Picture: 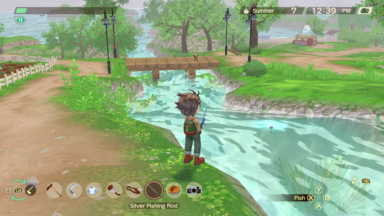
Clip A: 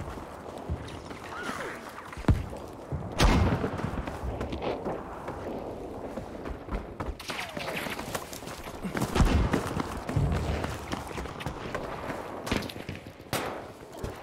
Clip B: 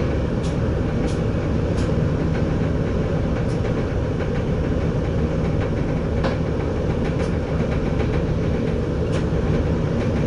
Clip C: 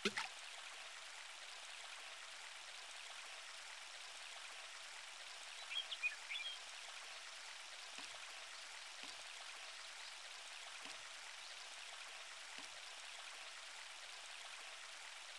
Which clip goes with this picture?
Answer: C